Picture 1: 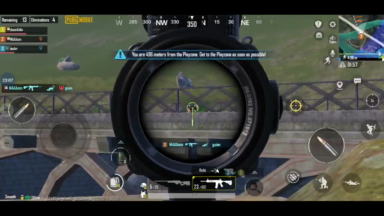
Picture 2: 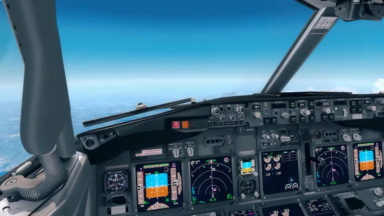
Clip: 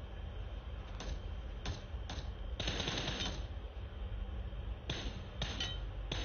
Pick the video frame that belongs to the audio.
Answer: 1